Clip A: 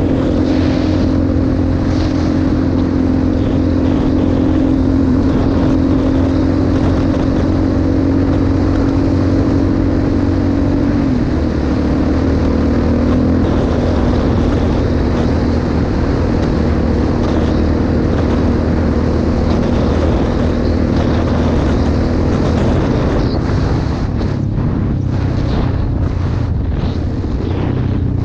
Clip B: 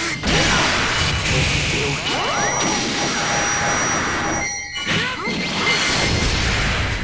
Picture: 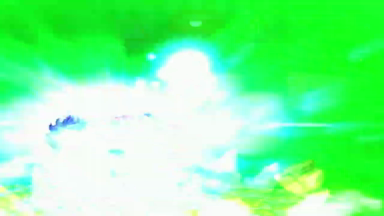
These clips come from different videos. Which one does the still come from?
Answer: B